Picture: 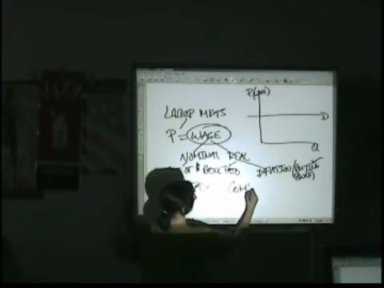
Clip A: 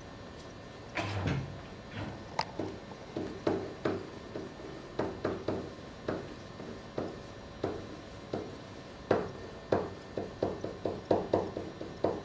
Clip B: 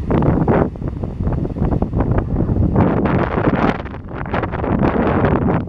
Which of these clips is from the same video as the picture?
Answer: A